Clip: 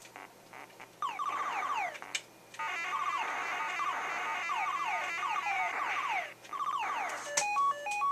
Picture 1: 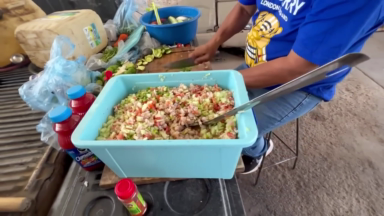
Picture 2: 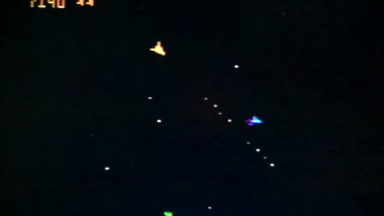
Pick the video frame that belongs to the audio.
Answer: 2